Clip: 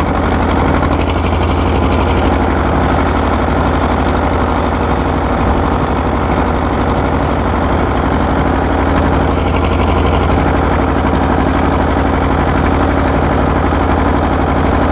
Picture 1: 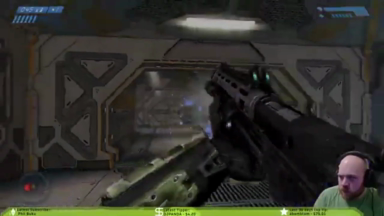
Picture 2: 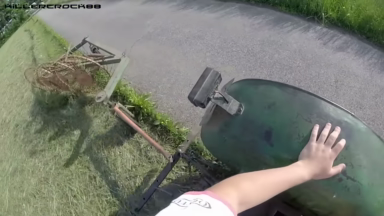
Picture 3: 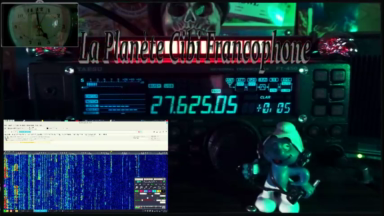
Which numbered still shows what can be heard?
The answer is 2